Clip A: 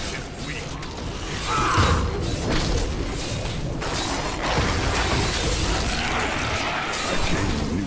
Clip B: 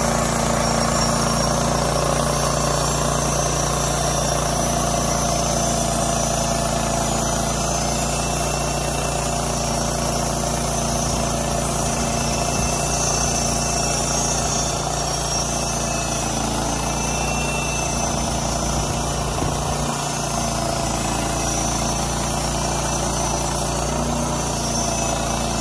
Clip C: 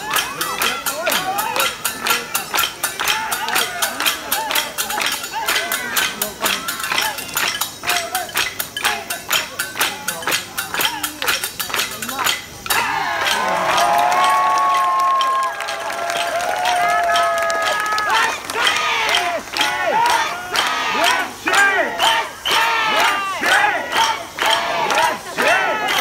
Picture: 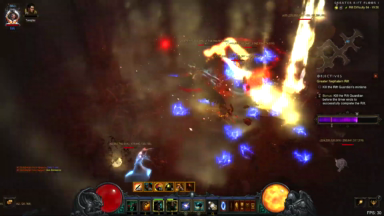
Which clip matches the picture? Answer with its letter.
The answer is A